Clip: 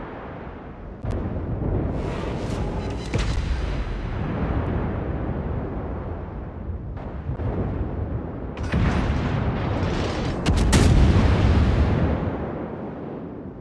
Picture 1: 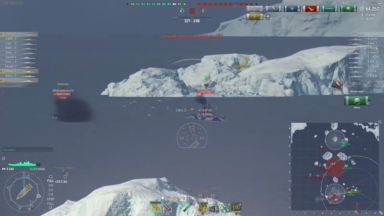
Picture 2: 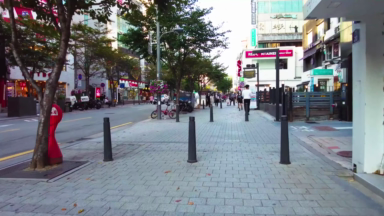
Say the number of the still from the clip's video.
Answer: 1